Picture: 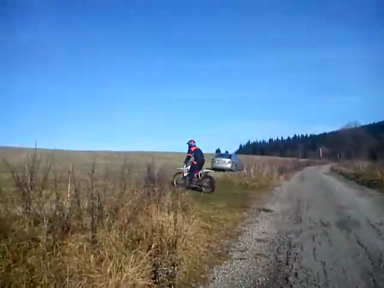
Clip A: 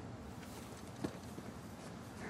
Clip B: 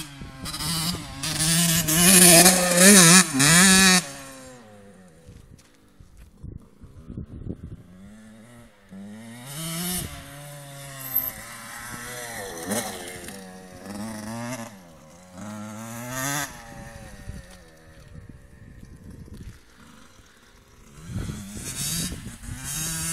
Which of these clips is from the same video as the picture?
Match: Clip B